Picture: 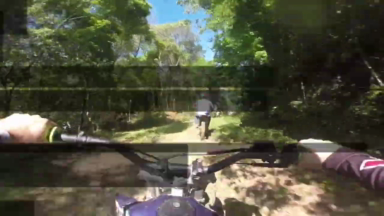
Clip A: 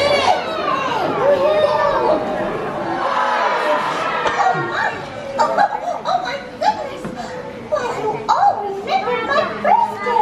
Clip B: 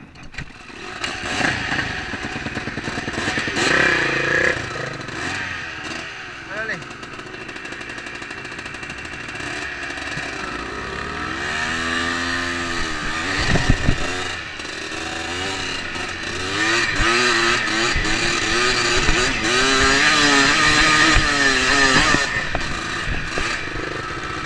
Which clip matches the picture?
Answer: B